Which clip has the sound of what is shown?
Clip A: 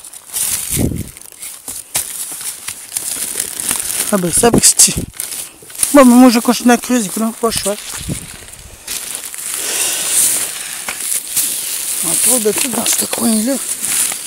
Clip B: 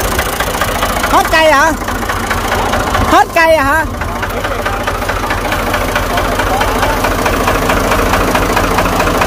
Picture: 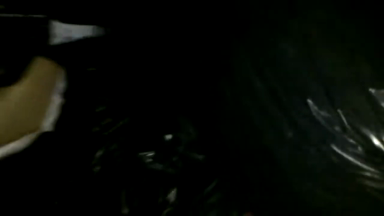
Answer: A